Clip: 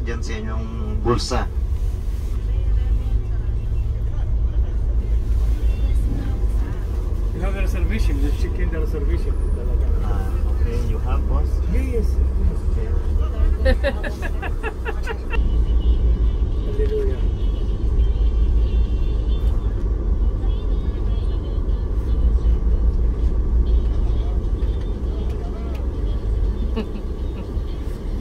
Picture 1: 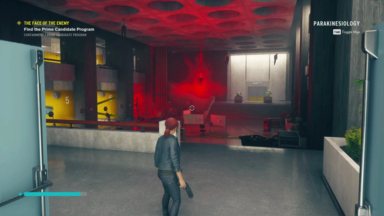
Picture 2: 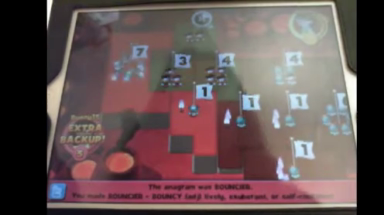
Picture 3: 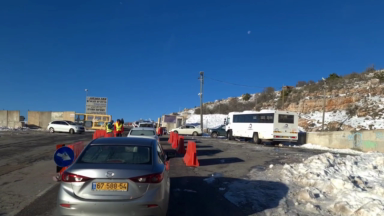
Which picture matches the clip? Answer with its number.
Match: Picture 3